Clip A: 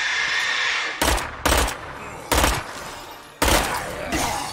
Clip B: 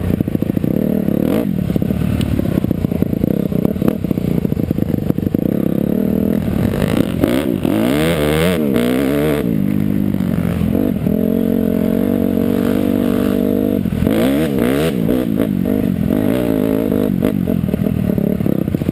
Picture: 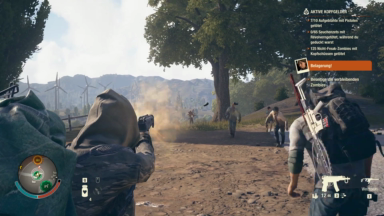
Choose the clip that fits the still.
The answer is A